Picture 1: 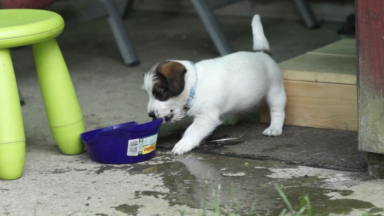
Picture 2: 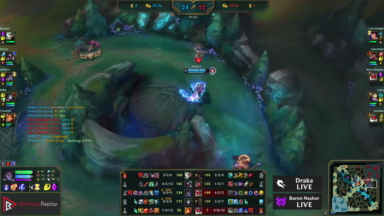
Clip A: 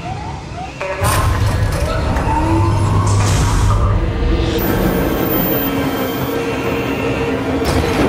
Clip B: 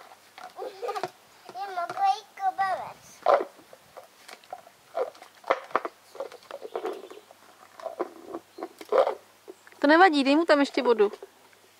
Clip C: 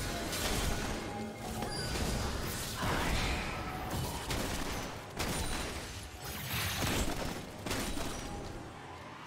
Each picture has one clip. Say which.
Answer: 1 B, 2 C